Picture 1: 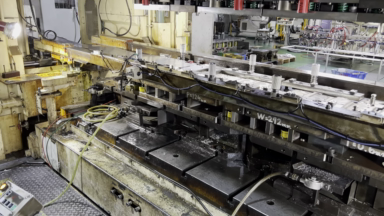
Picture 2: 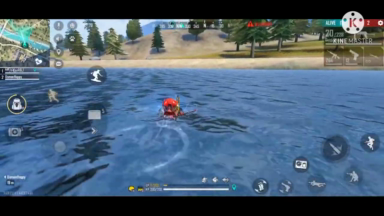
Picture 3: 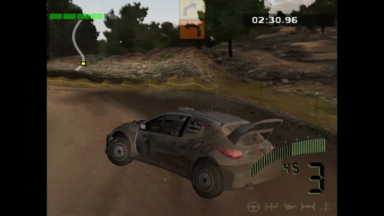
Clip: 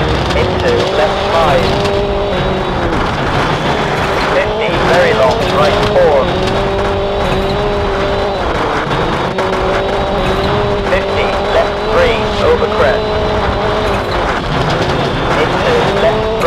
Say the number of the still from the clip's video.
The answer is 3